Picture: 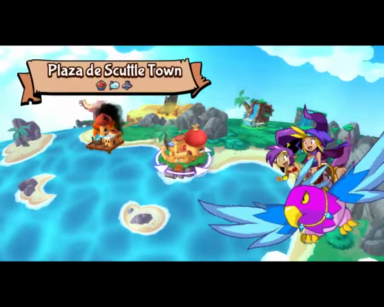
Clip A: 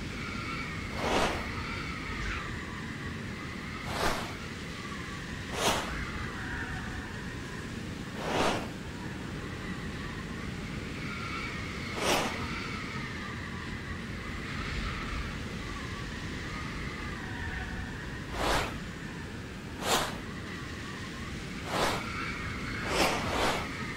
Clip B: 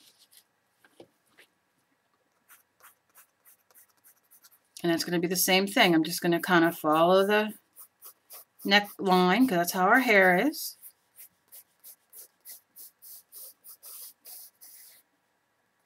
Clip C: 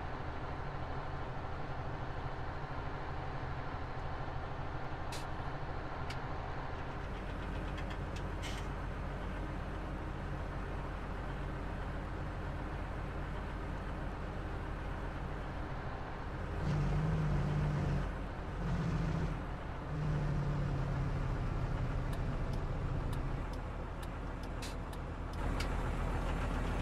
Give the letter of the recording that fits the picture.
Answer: A